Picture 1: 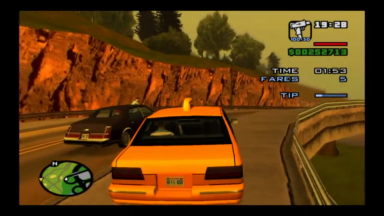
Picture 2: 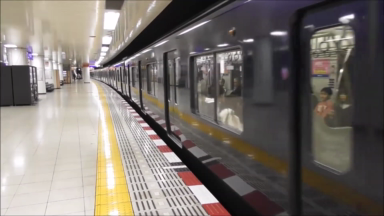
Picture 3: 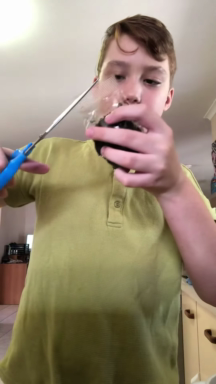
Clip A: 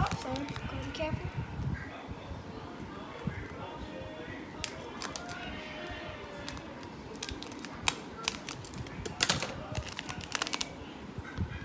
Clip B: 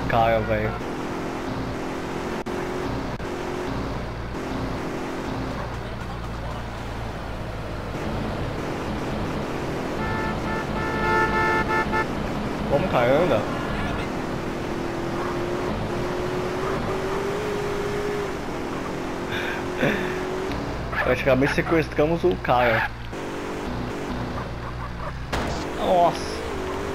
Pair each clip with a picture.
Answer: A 3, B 1